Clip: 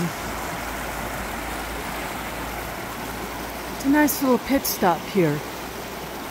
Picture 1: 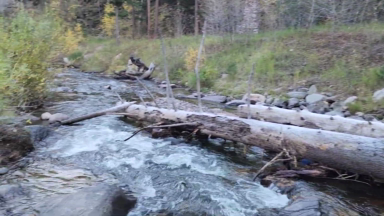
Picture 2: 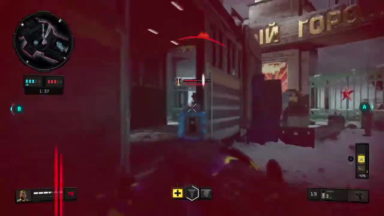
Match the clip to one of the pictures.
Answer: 1